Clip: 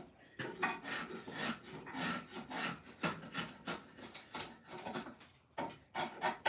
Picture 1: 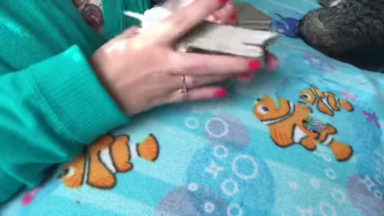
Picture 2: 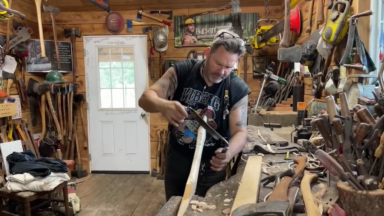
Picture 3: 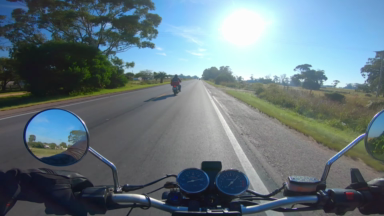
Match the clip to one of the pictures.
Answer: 2